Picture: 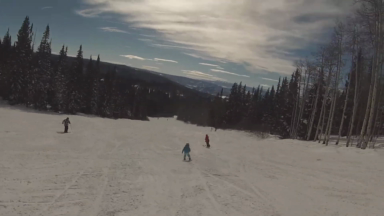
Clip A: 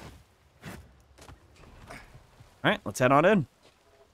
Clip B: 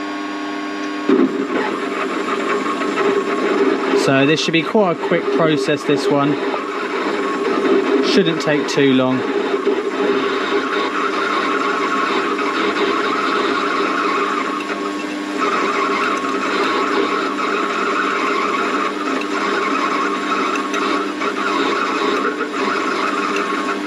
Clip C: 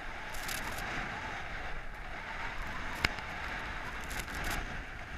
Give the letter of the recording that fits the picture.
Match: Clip C